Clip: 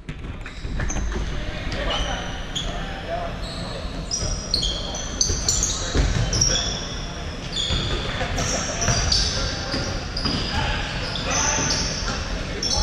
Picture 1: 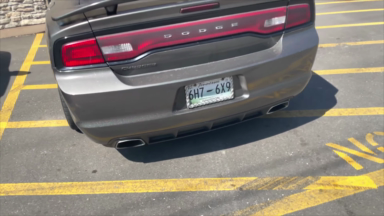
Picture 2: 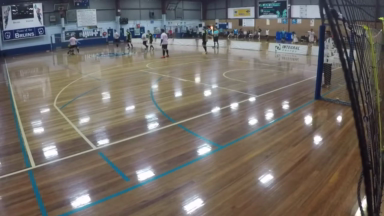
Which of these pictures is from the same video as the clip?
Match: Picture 2